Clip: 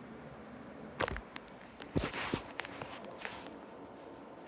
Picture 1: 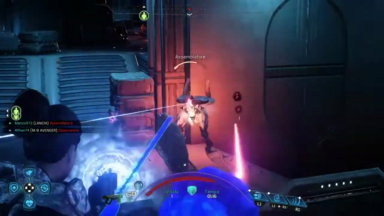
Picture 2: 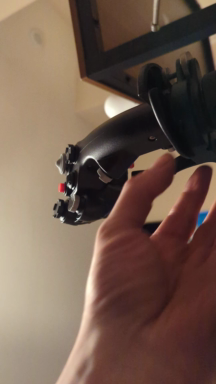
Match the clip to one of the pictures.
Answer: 2